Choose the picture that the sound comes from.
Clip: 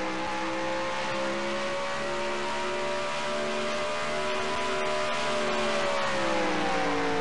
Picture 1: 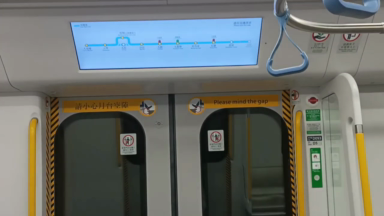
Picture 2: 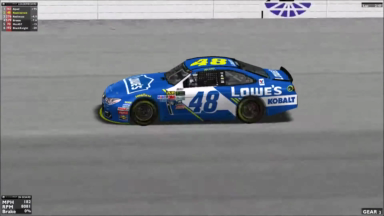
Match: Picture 2